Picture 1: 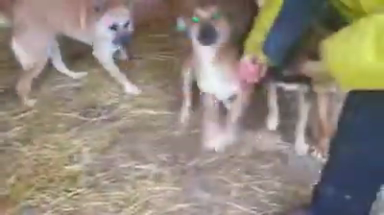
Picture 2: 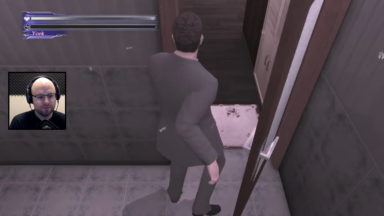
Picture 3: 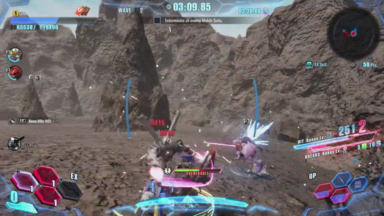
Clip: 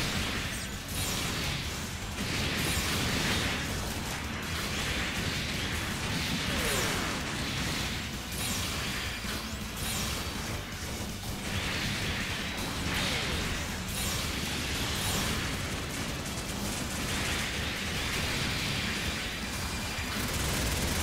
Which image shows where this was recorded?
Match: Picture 3